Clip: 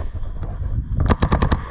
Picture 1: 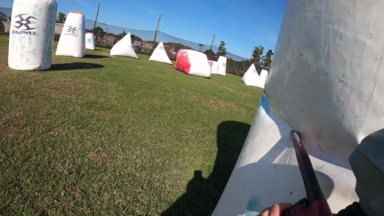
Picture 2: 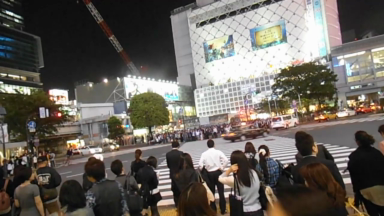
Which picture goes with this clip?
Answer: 1